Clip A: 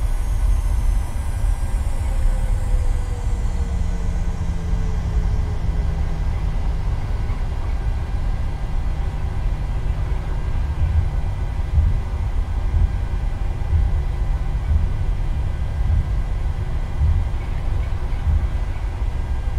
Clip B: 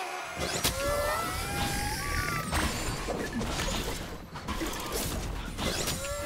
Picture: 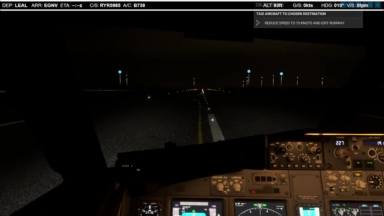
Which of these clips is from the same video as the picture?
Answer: A